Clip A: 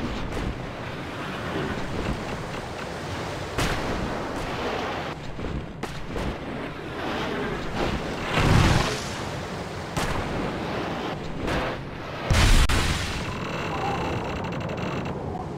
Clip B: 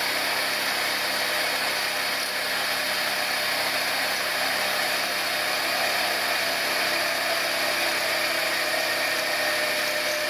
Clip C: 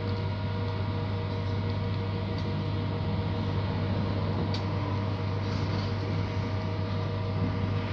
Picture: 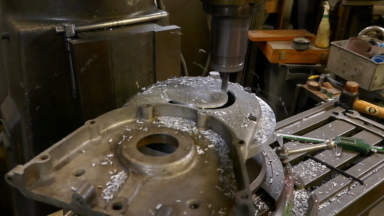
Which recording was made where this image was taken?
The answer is B